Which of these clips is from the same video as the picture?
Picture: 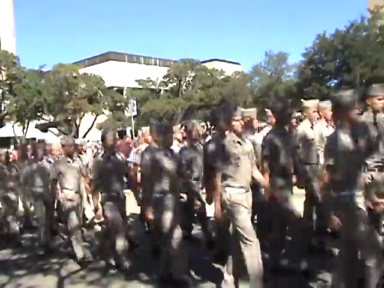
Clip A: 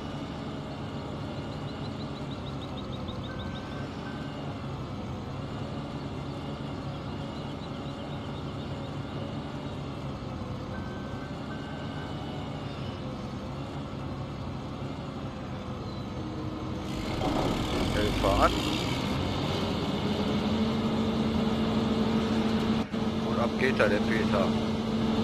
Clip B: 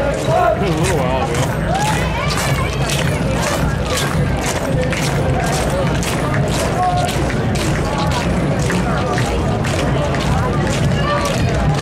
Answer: B